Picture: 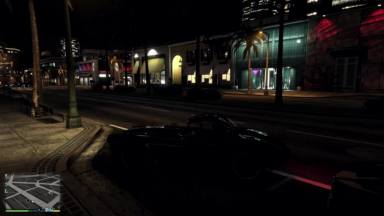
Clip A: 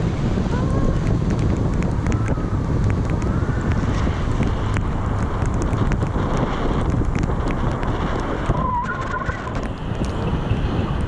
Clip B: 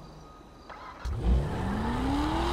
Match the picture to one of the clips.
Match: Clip B